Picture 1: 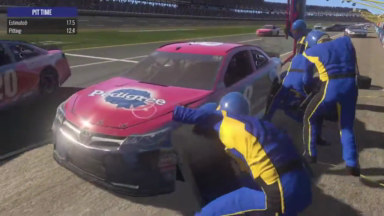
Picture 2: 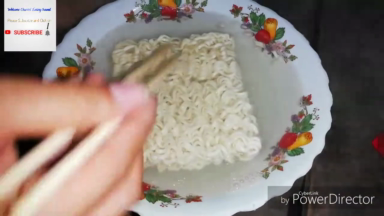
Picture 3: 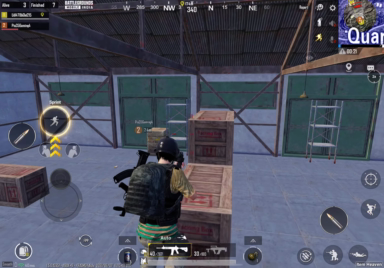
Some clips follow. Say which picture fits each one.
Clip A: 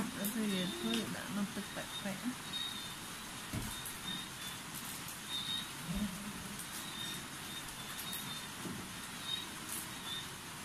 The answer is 2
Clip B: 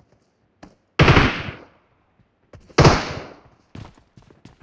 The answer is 3